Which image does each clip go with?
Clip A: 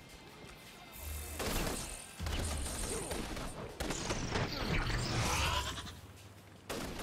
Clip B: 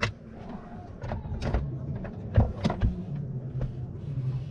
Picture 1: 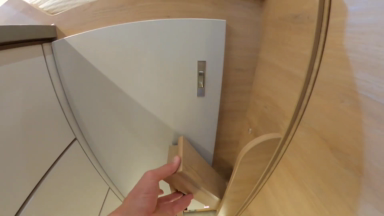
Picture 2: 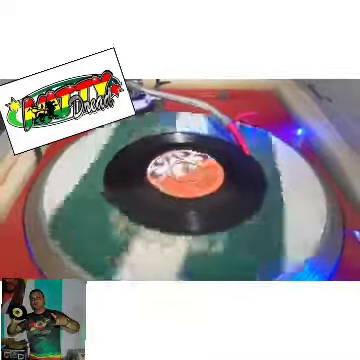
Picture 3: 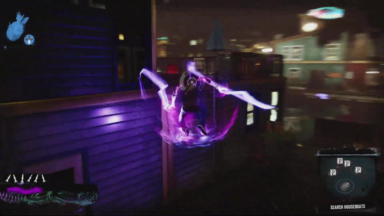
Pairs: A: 3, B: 1